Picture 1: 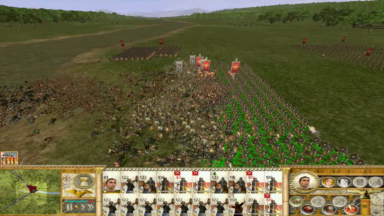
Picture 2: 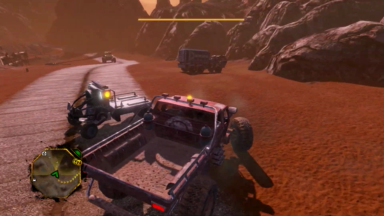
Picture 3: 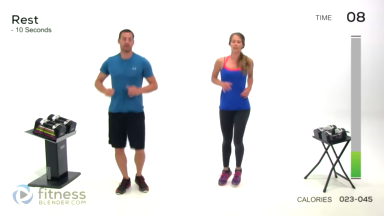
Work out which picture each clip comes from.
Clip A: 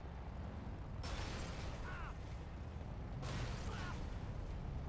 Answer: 2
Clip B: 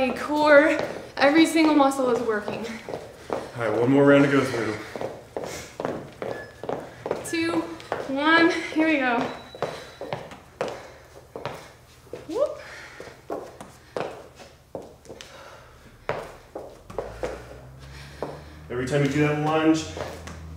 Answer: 3